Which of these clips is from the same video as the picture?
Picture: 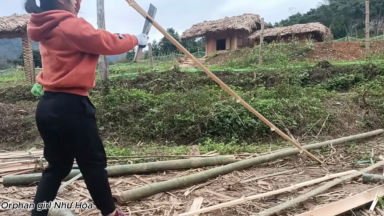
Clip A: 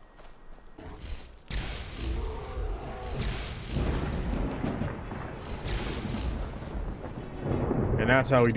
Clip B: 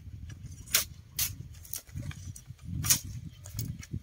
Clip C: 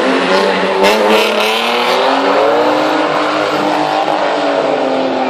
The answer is B